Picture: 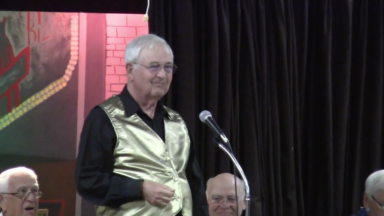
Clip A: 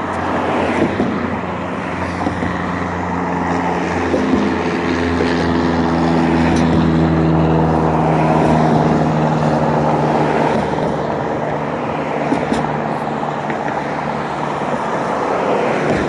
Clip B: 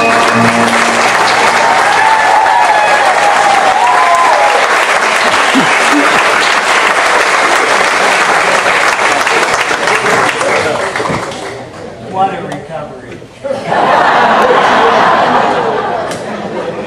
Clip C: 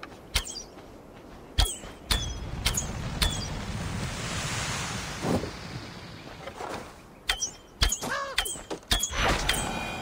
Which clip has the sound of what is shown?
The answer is B